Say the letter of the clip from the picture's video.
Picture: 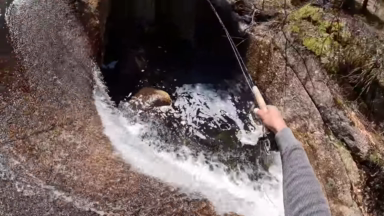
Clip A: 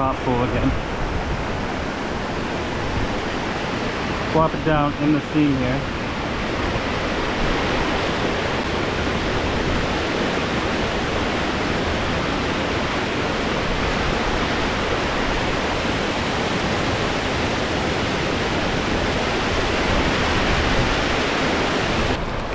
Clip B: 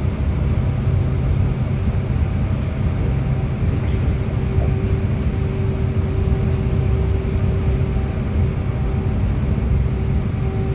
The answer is A